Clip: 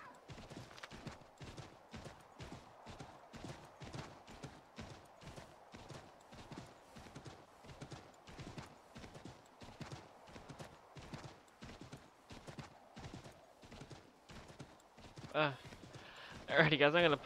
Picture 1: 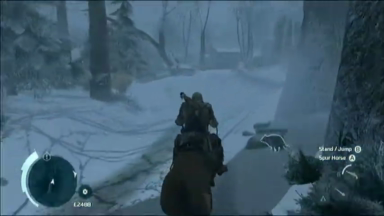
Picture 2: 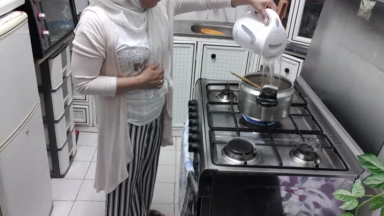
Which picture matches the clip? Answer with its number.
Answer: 1